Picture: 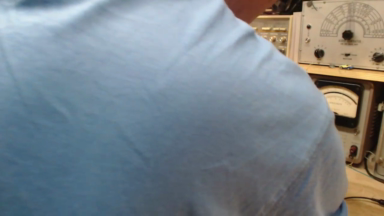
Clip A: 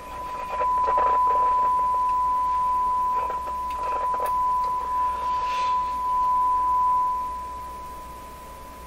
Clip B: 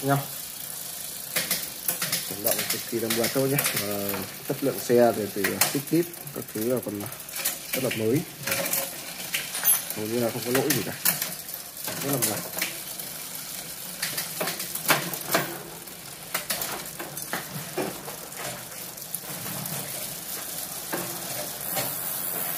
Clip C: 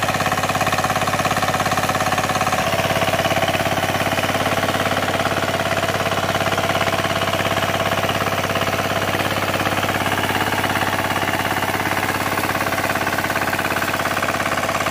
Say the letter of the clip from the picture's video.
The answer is A